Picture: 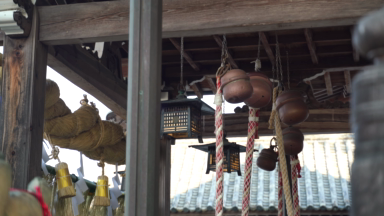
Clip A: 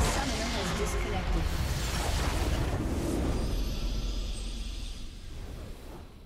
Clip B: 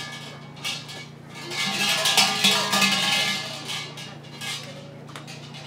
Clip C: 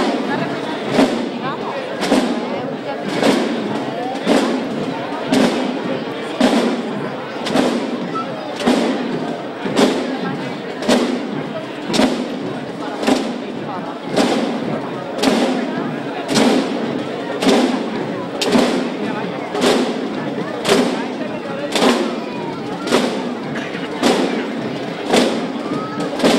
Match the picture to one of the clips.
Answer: B